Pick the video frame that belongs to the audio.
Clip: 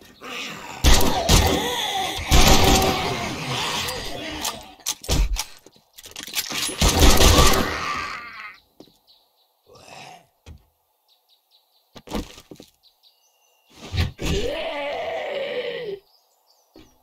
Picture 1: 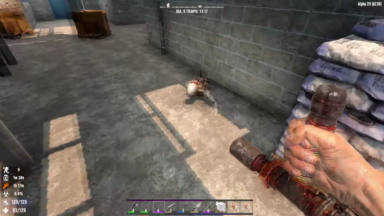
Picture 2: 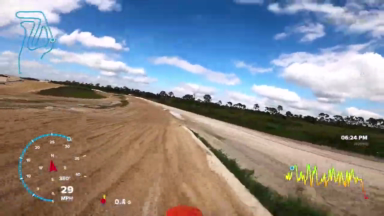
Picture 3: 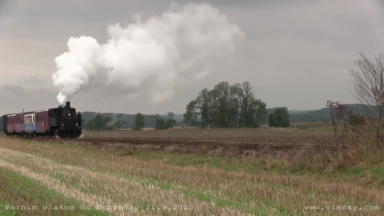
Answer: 1